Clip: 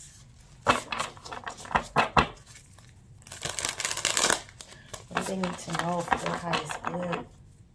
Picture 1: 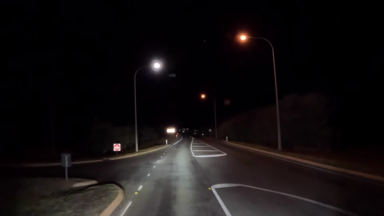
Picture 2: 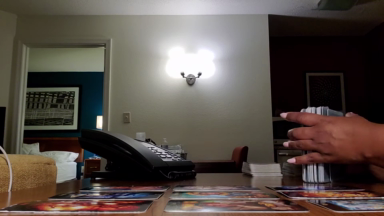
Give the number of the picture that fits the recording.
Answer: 2